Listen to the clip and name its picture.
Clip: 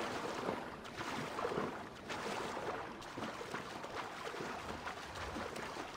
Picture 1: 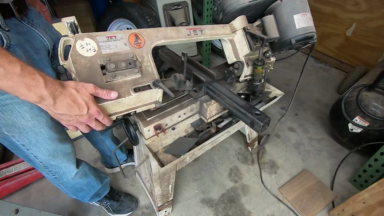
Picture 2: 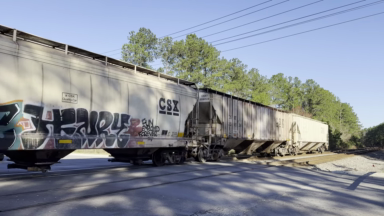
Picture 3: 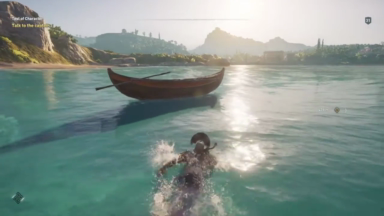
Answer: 3